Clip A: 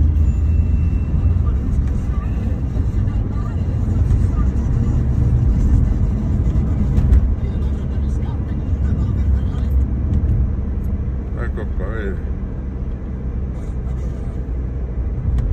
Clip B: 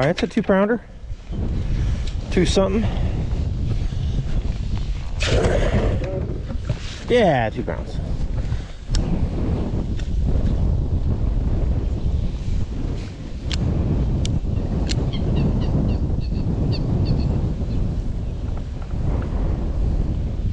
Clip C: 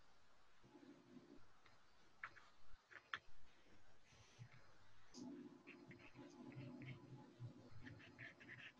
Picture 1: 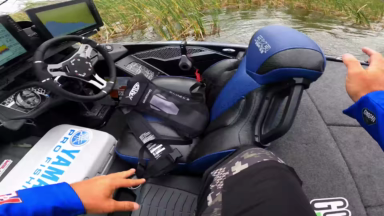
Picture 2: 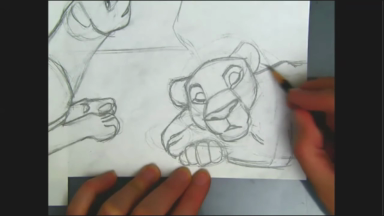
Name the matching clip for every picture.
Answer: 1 B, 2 C